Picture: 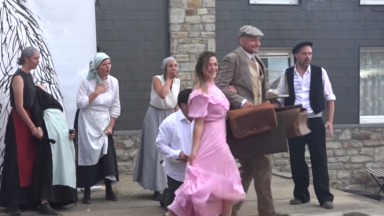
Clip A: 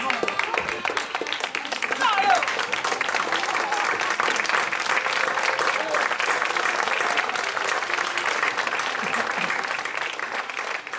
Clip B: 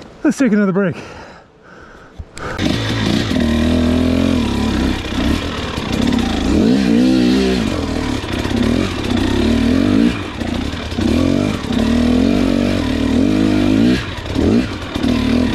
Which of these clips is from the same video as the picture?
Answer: A